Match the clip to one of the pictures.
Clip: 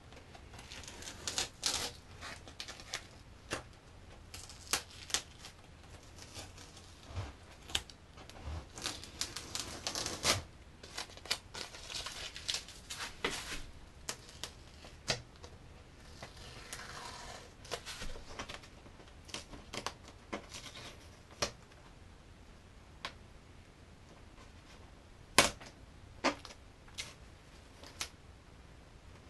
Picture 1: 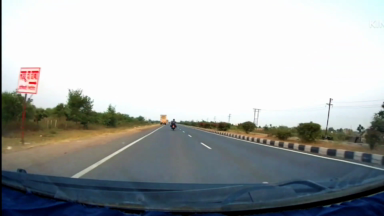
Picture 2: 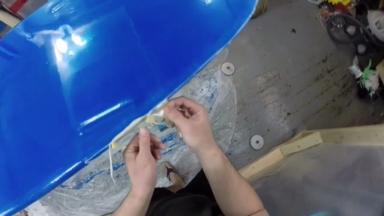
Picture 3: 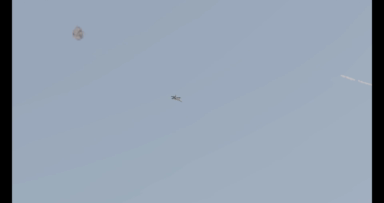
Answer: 2